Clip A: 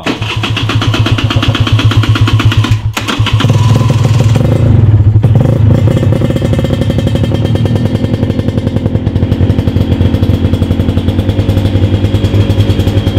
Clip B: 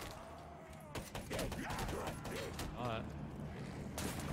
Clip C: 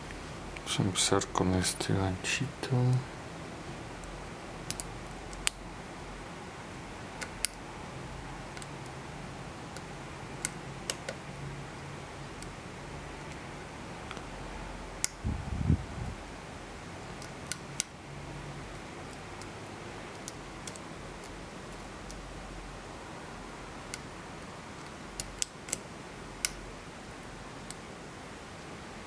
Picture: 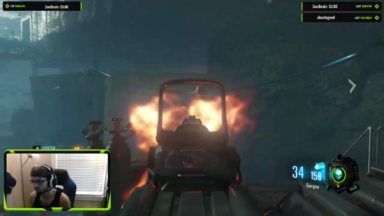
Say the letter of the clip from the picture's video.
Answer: B